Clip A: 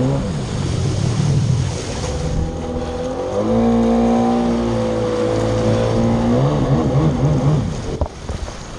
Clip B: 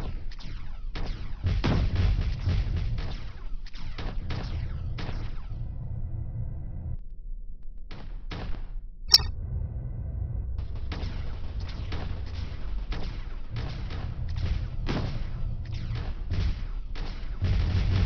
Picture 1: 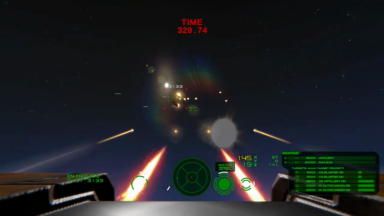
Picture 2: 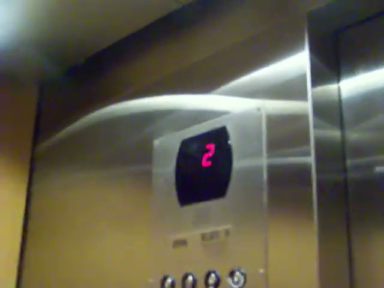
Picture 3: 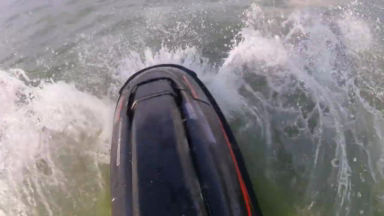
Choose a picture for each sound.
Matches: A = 3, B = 1